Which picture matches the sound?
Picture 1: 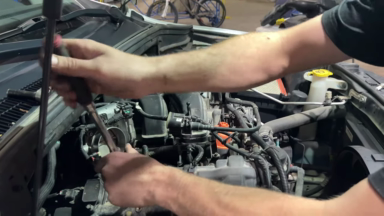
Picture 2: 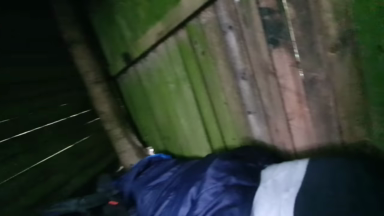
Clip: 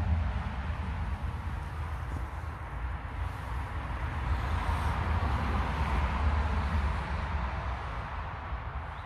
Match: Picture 2